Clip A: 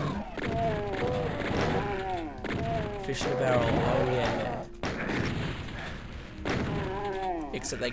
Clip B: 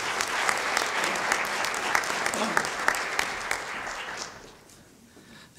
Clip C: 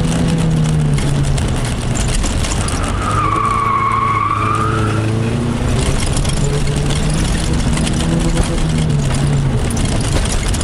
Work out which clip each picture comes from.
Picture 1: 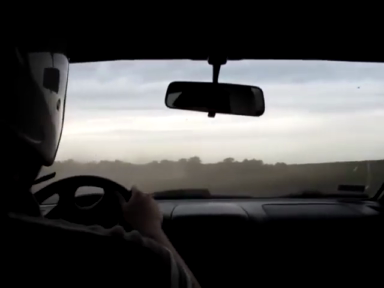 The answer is C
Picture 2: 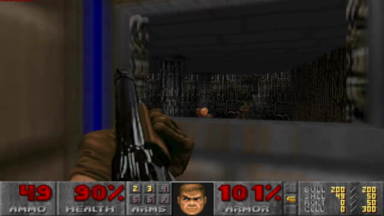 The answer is A